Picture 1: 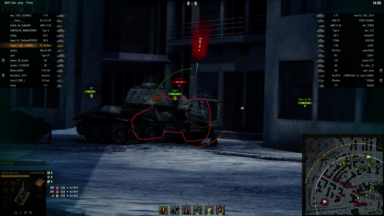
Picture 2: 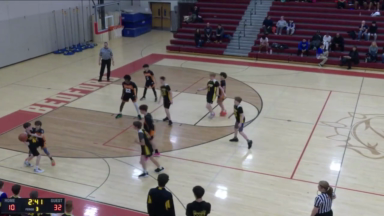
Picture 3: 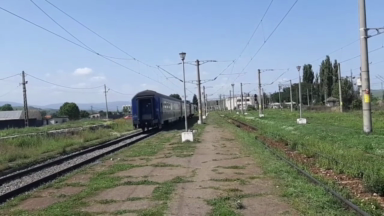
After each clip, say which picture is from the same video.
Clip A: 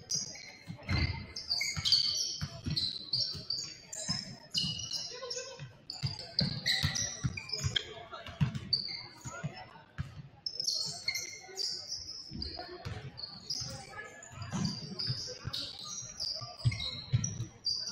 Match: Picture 2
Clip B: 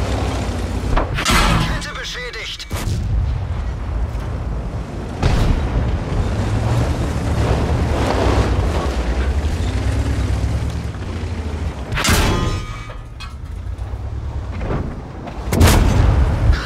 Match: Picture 1